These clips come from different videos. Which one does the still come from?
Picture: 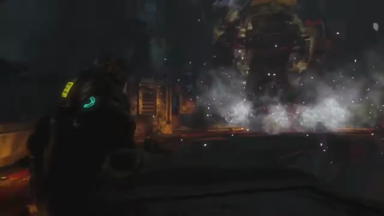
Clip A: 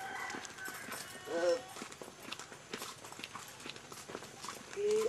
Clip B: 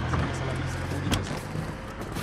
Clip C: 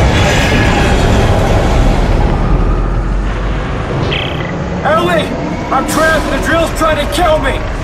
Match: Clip C